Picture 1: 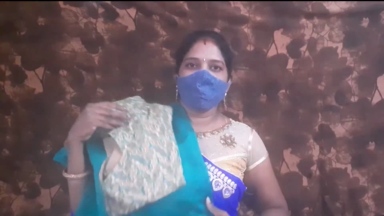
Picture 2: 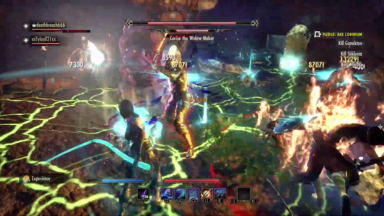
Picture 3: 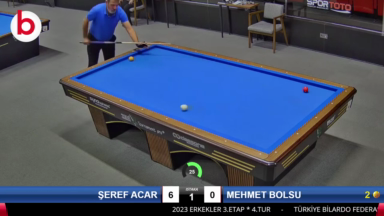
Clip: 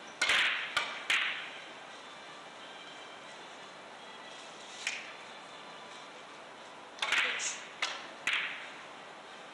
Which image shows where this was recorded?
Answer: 3